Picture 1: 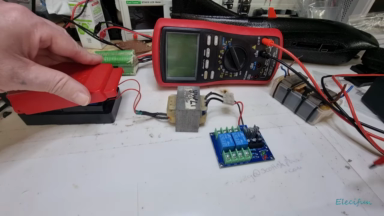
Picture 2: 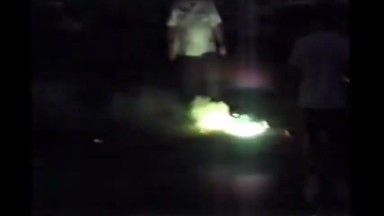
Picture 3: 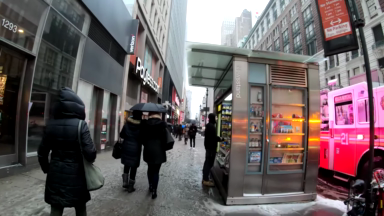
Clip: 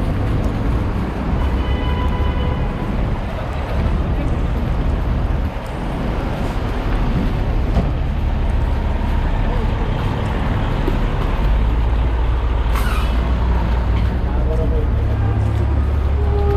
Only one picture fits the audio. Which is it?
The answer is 3